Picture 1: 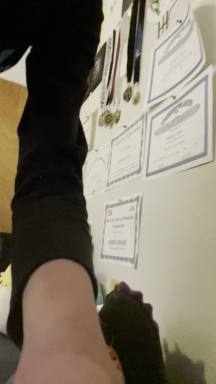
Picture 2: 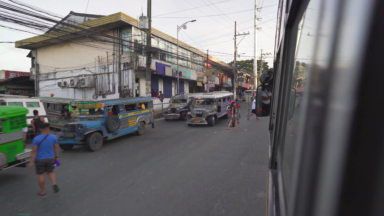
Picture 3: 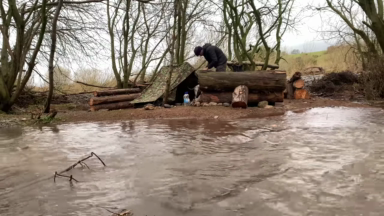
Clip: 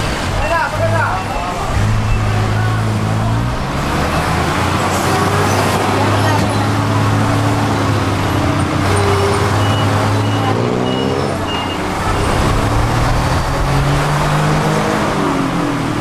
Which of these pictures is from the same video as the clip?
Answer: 2